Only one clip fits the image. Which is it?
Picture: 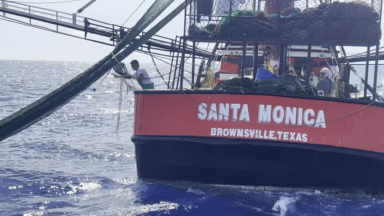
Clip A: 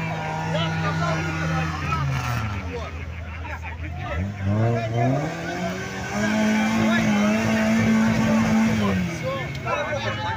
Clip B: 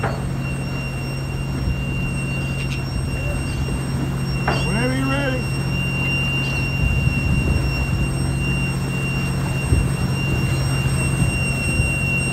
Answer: B